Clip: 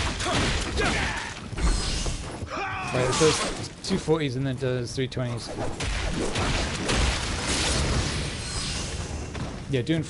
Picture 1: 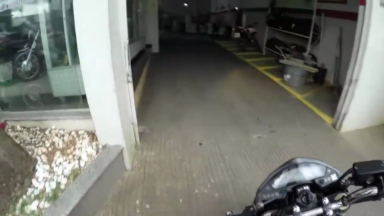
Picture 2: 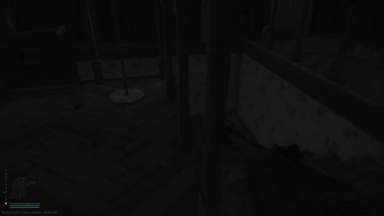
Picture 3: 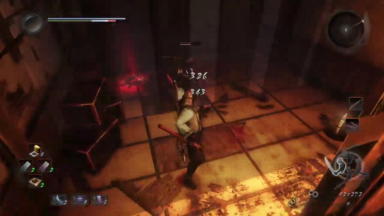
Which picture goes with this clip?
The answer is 3